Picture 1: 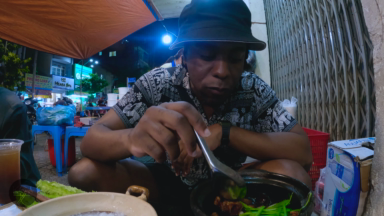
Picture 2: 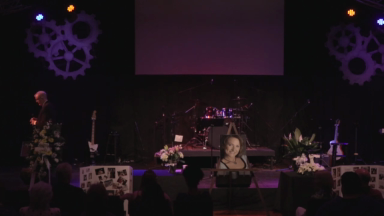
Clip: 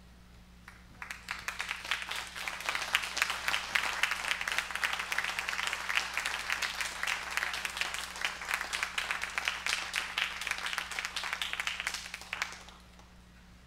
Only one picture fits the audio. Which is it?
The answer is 2